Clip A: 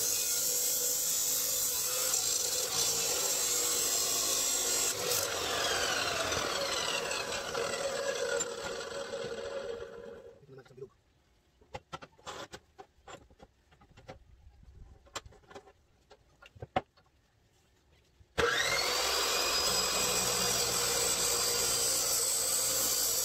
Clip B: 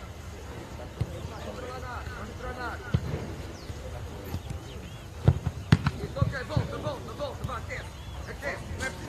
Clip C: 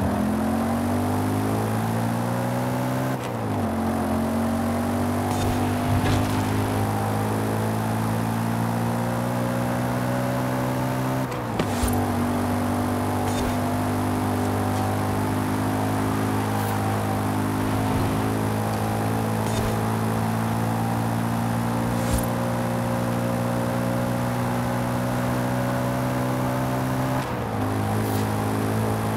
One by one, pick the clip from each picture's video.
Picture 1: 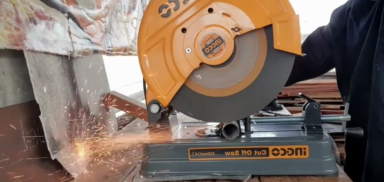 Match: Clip A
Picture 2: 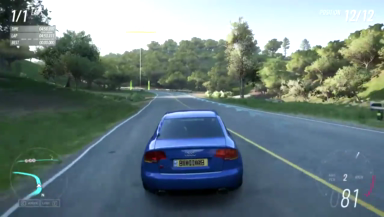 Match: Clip C